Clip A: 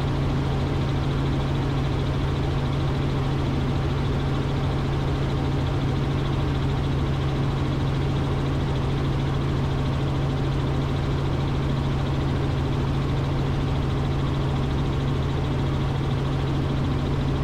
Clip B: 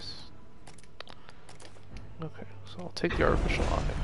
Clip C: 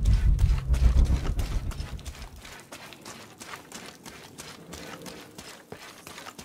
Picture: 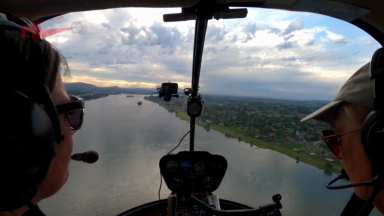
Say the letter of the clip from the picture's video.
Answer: A